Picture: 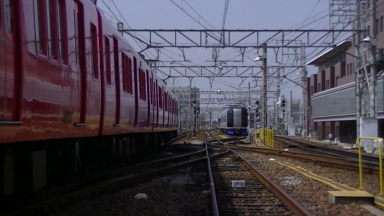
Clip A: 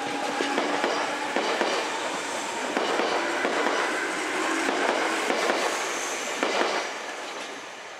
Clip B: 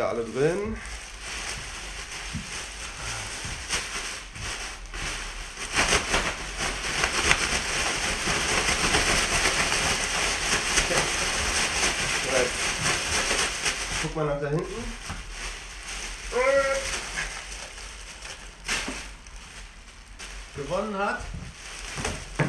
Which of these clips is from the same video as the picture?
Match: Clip A